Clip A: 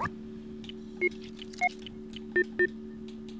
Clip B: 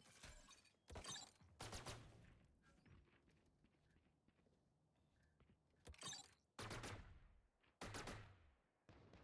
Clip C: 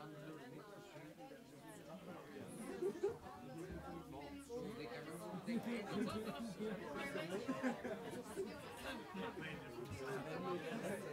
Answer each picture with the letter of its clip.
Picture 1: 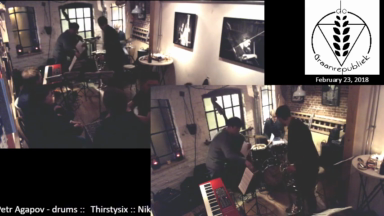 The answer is C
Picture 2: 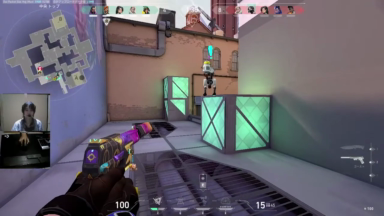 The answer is B